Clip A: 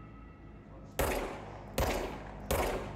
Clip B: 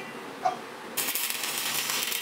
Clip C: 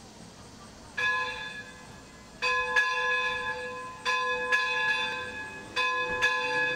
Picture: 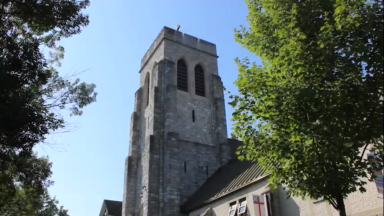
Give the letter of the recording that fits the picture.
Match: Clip C